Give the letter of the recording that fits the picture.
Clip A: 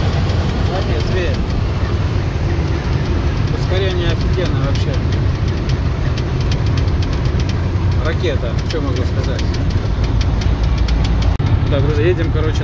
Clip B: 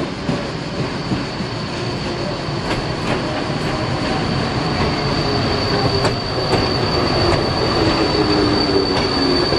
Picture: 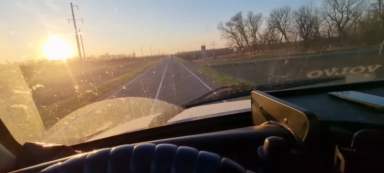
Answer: A